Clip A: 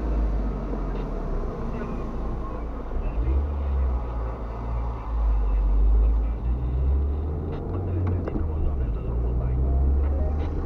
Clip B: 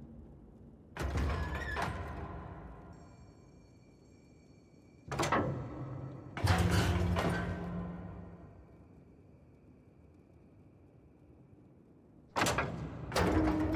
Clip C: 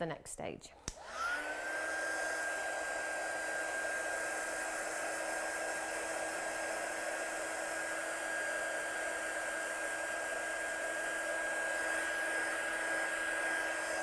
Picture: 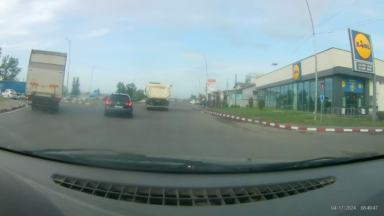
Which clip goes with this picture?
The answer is A